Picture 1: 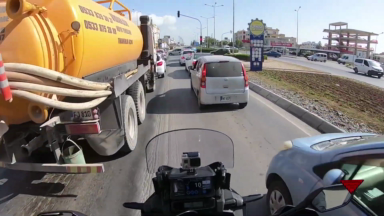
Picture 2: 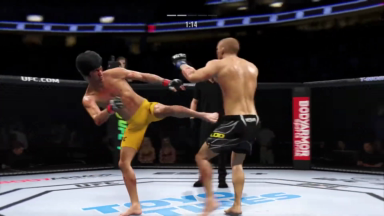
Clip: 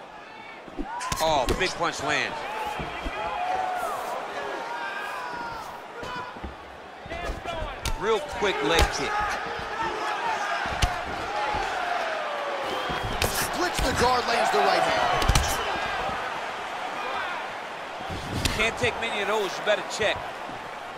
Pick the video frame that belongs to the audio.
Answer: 2